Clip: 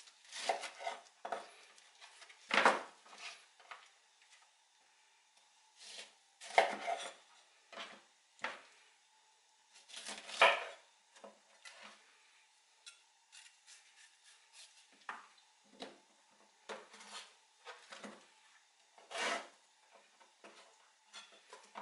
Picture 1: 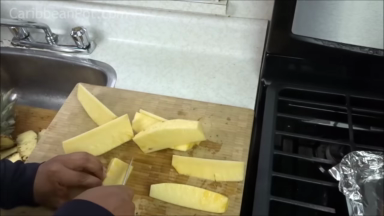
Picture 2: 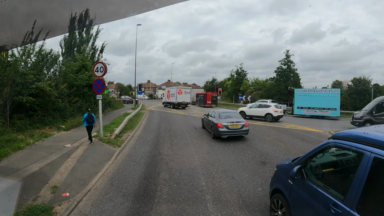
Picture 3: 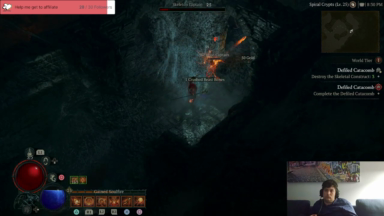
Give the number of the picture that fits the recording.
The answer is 1